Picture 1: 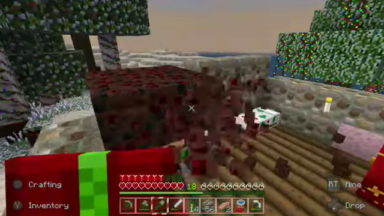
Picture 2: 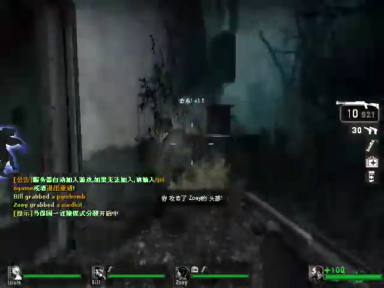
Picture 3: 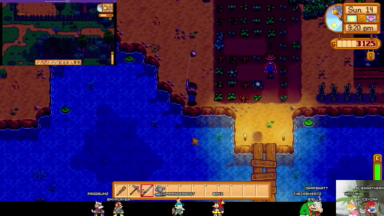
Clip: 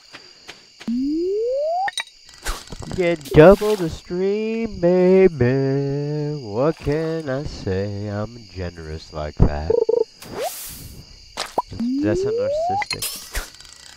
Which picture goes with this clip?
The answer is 3